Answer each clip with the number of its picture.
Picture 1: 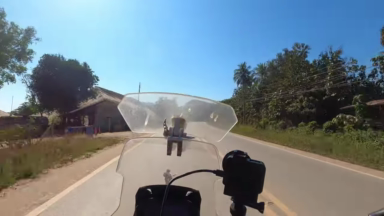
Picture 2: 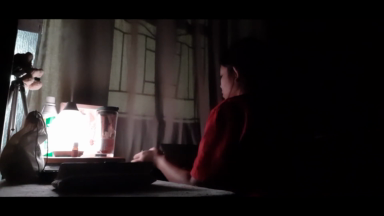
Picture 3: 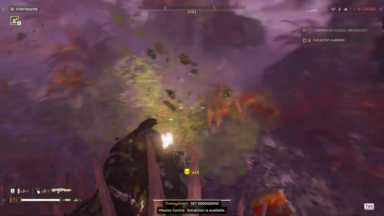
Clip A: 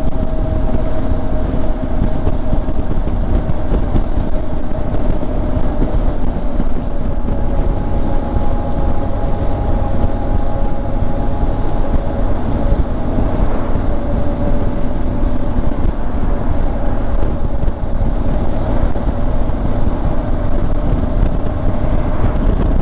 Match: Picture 1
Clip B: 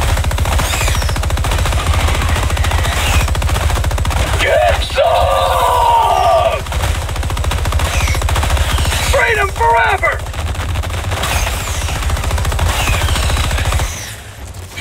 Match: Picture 3